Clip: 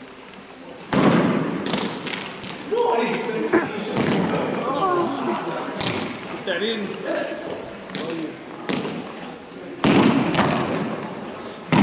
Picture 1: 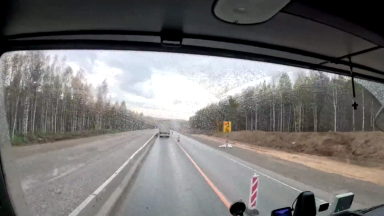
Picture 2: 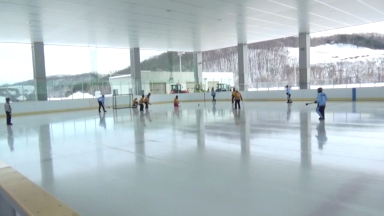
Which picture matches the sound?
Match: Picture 2